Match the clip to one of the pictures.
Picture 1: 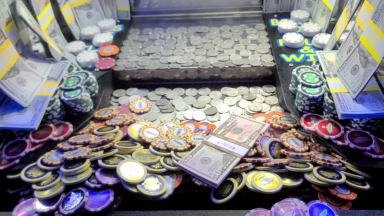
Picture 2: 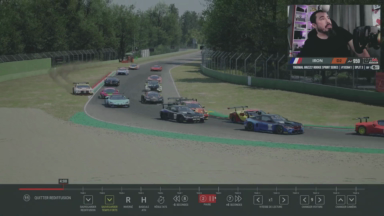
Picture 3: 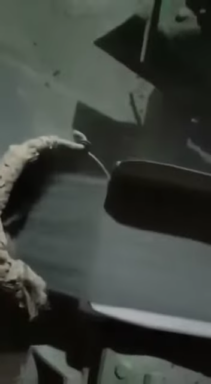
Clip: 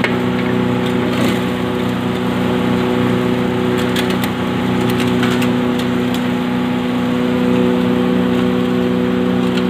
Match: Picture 3